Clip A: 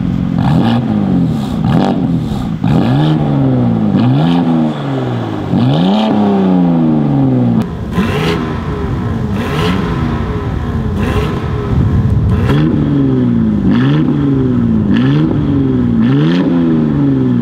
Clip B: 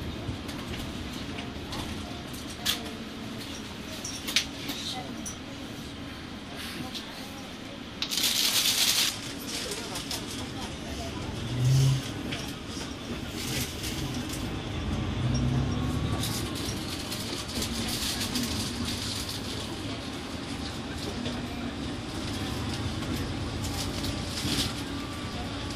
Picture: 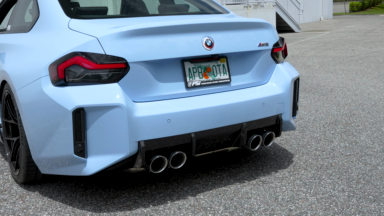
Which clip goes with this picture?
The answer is A